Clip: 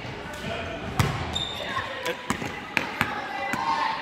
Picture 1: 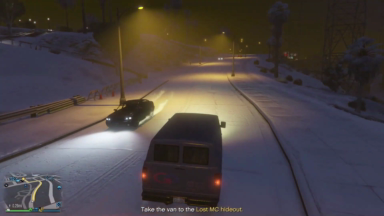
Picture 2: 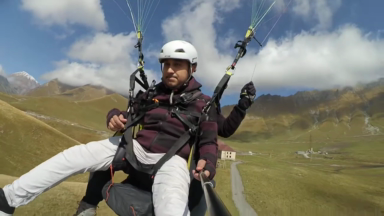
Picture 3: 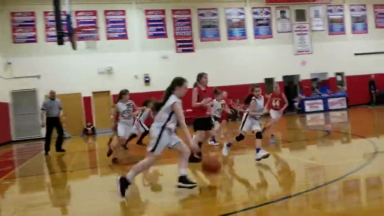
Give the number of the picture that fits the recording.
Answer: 3